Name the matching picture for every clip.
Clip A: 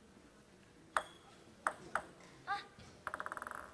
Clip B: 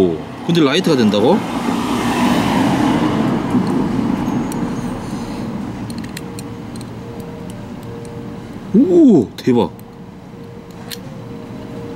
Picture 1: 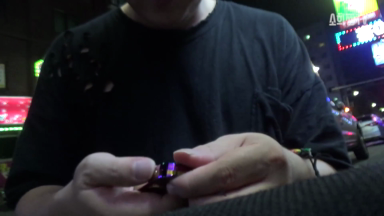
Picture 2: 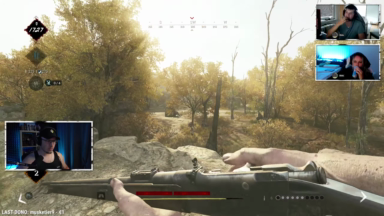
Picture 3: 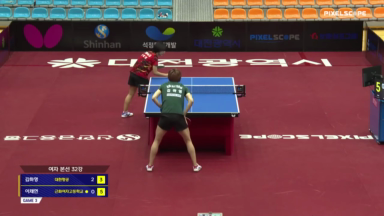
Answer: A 3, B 1